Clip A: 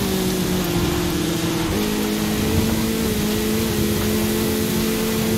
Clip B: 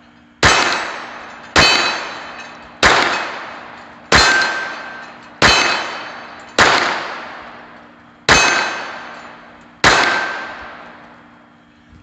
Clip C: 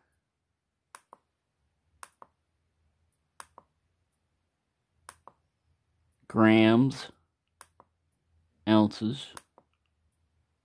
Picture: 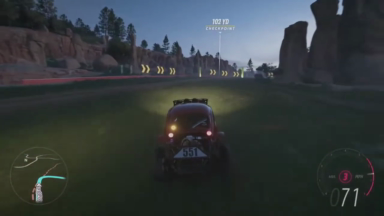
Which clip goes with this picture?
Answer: A